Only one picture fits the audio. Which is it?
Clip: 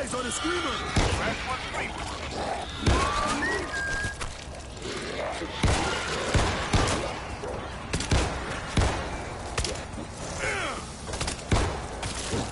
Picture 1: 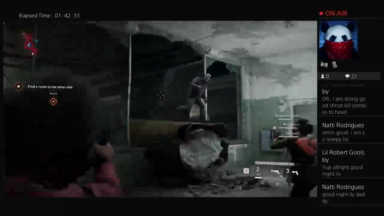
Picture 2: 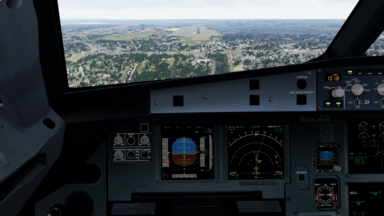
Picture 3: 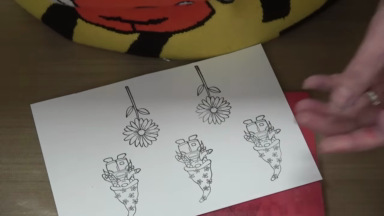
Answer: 1